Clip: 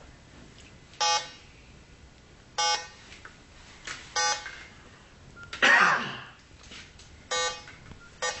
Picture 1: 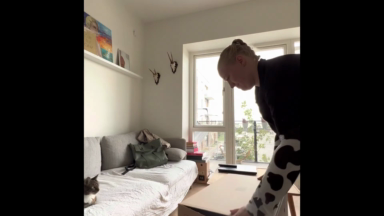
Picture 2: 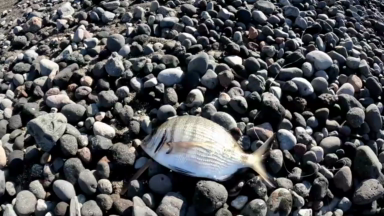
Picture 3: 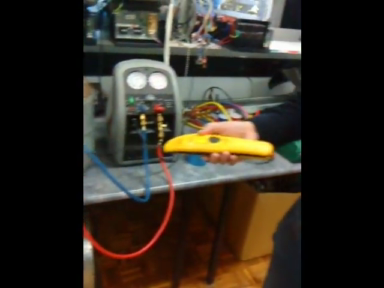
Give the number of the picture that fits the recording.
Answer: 3